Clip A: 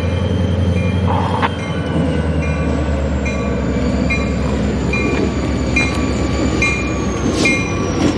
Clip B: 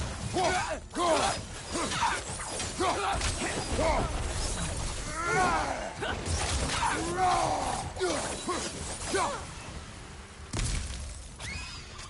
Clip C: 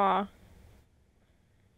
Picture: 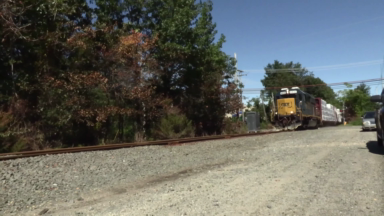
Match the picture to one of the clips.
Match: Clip A